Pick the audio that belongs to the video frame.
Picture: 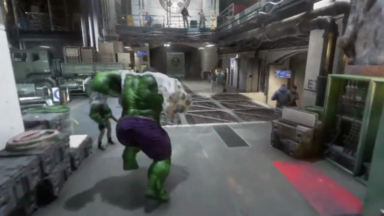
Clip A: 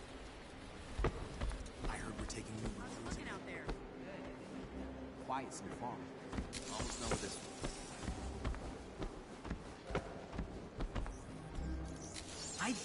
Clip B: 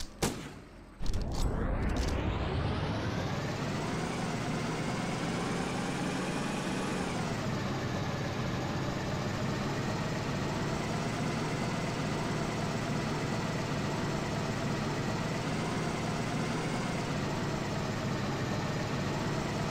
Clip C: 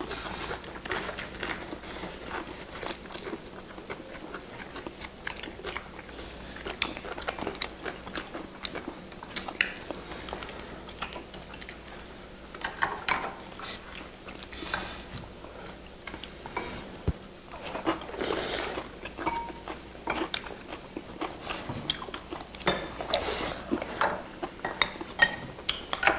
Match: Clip A